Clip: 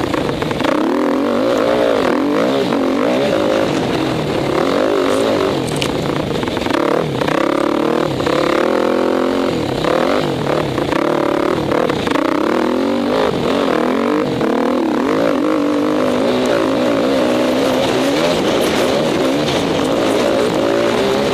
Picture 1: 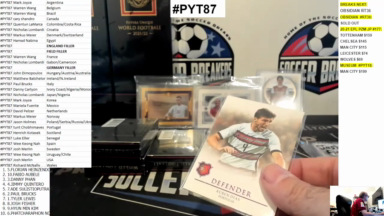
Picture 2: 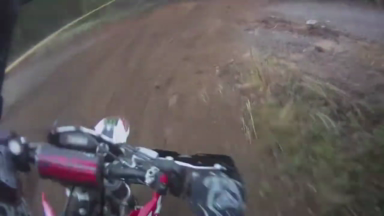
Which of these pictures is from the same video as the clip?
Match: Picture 2